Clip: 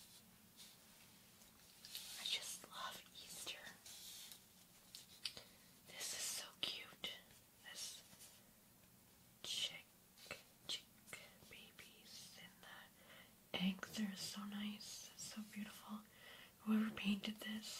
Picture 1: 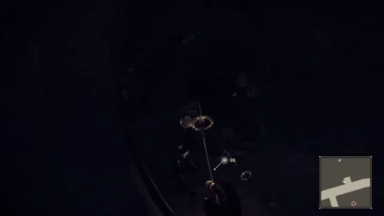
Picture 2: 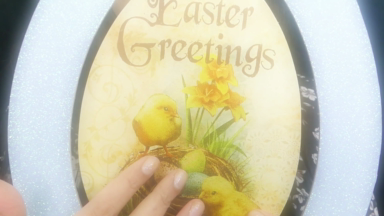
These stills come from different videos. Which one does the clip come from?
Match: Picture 2